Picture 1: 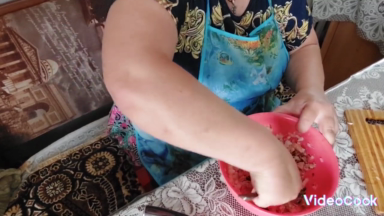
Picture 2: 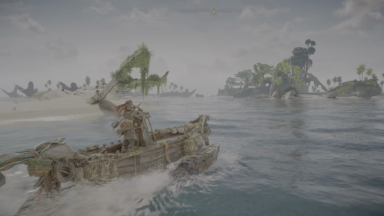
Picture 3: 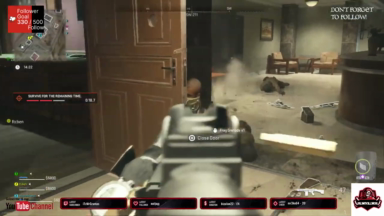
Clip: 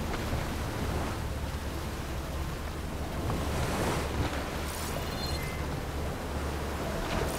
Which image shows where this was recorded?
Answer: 2